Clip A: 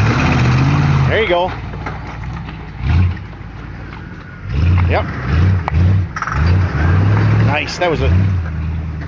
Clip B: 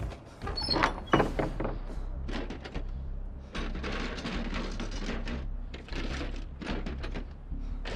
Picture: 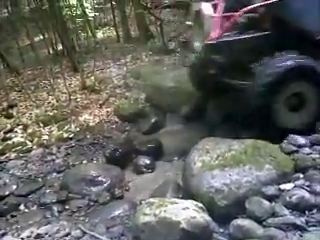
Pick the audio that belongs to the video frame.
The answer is A